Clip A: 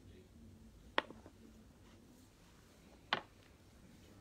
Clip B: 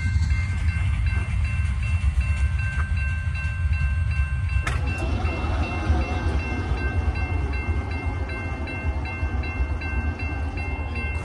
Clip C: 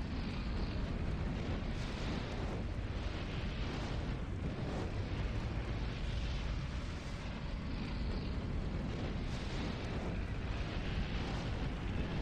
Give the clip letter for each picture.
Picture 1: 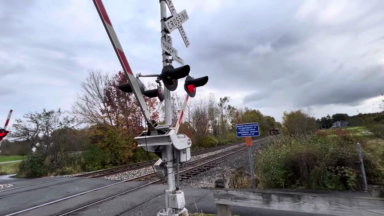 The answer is B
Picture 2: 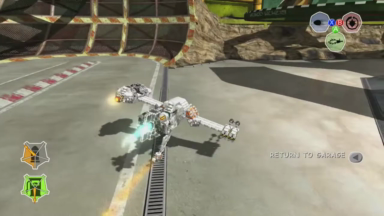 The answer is C